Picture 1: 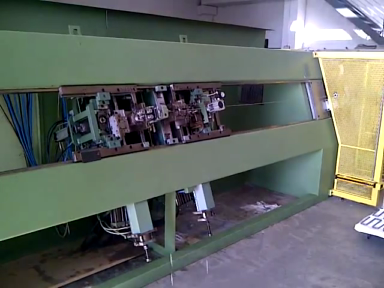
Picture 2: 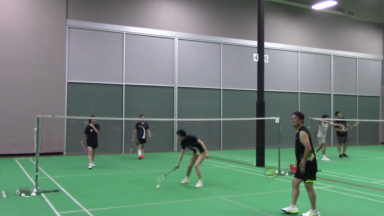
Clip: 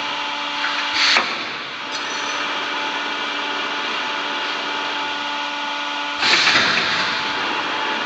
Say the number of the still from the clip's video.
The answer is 1